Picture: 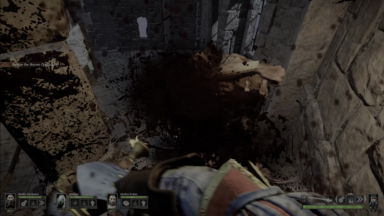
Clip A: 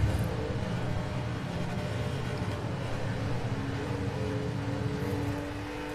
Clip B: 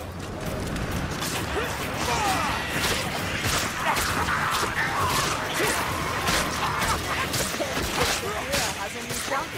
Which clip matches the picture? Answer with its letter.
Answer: B